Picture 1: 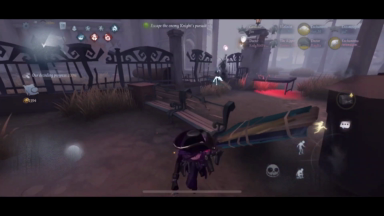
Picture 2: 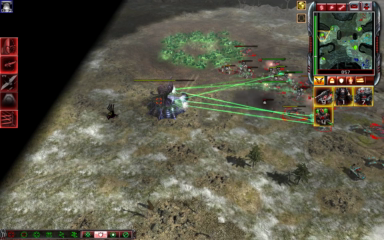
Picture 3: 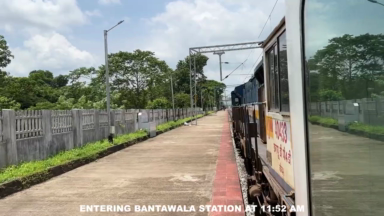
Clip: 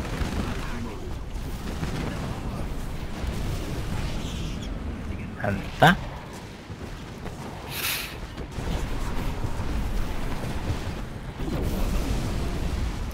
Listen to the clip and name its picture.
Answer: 2